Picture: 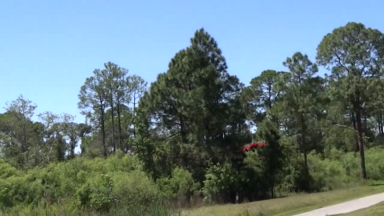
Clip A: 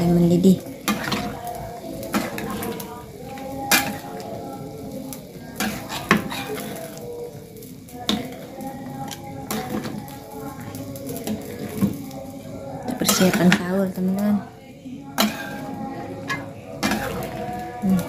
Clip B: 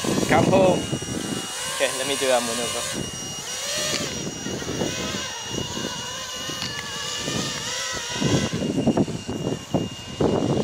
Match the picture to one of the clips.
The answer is B